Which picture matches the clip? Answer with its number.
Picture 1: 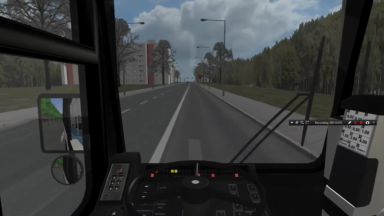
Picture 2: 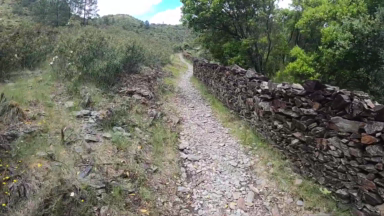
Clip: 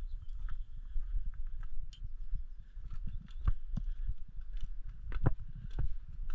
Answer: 2